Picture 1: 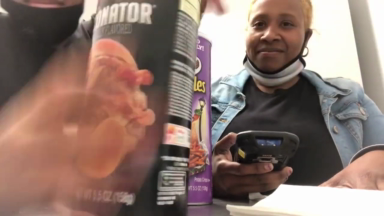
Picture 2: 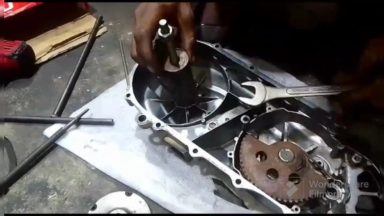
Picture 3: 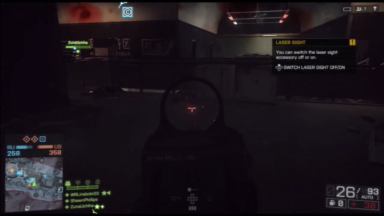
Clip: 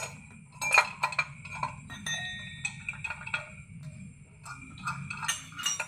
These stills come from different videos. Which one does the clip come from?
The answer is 2